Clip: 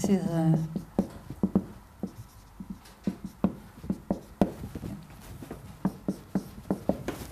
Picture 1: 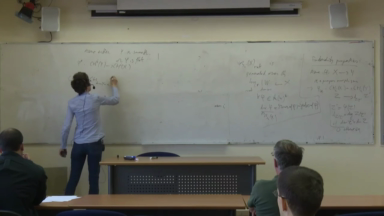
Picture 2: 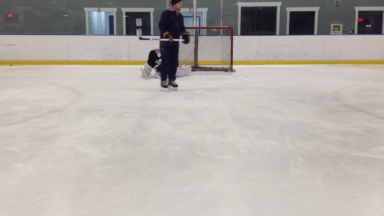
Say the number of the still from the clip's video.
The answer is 1